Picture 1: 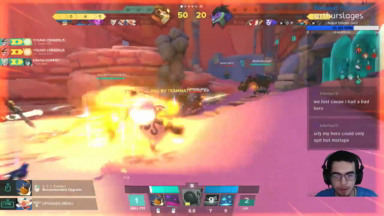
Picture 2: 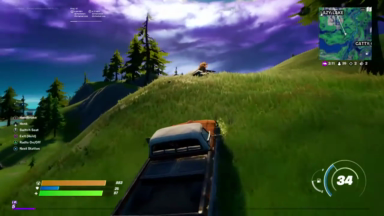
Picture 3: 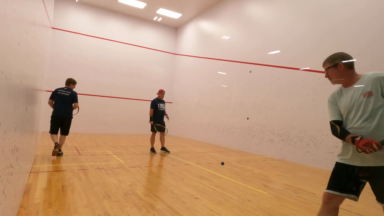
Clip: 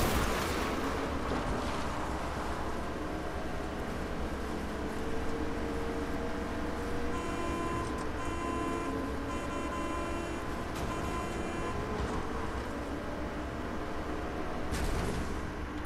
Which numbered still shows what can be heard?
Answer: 2